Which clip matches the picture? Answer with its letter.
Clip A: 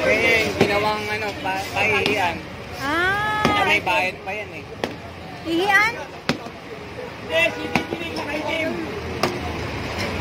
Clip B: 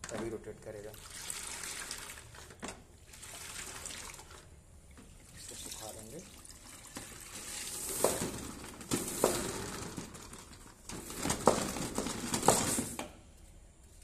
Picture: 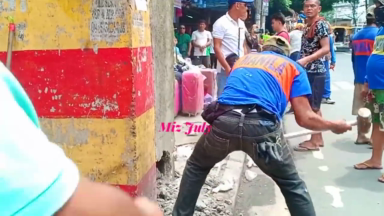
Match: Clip A